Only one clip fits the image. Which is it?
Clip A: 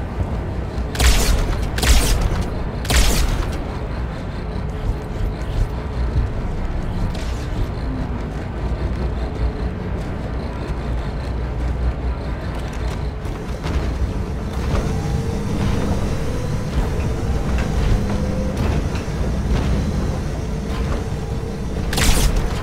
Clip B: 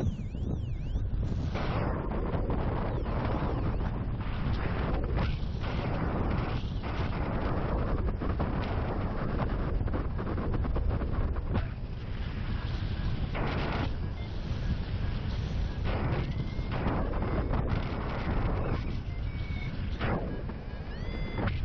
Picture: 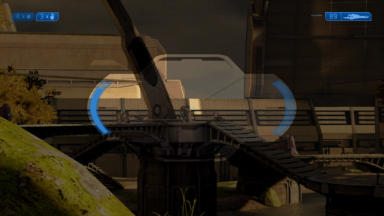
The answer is A